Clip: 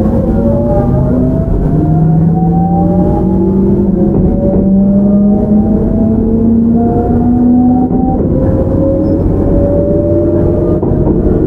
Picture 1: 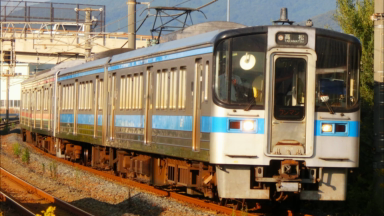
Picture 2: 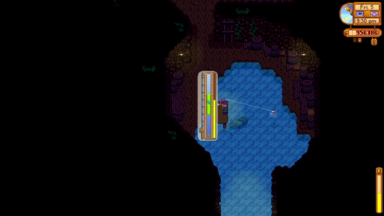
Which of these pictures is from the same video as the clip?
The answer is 1